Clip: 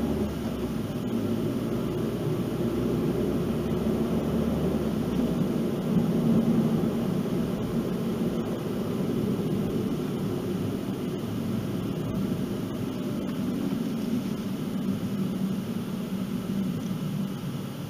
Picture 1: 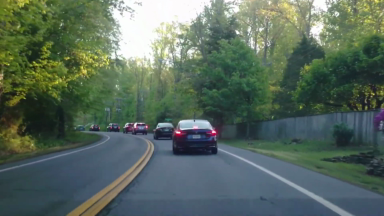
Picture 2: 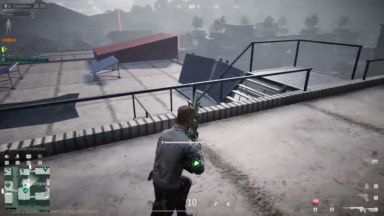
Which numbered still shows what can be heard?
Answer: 1